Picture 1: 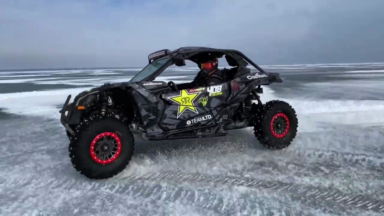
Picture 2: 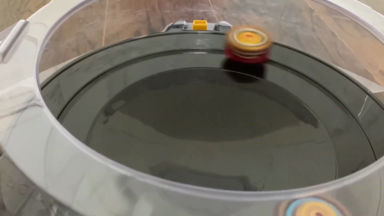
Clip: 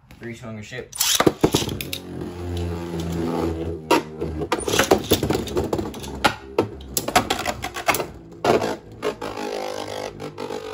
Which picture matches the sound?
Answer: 2